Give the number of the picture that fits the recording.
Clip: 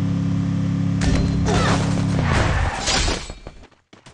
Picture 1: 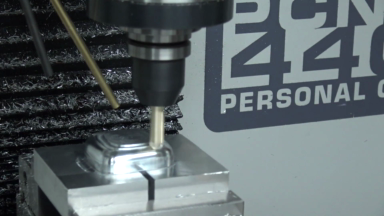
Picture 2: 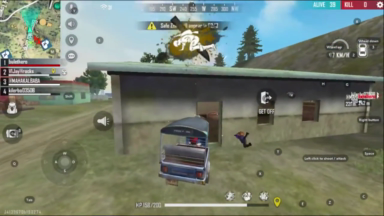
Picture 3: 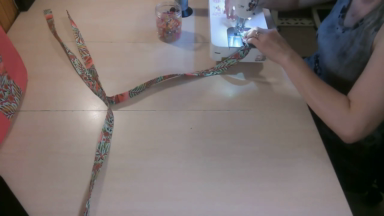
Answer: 2